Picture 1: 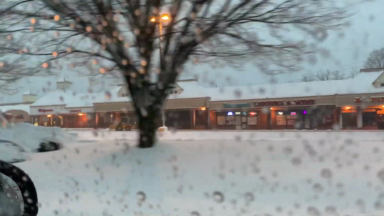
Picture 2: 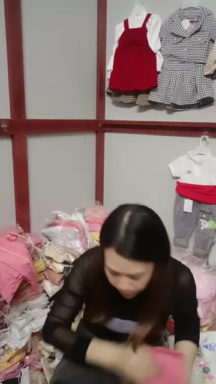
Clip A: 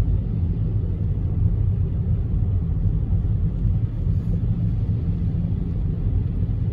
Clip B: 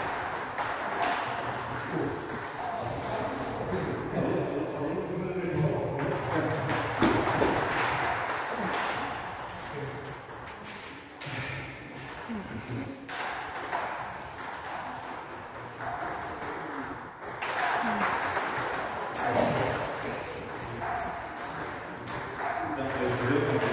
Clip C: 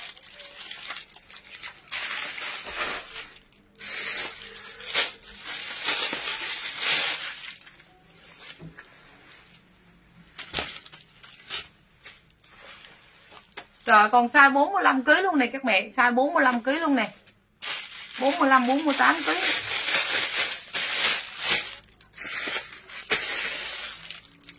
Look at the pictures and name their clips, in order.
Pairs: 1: A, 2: C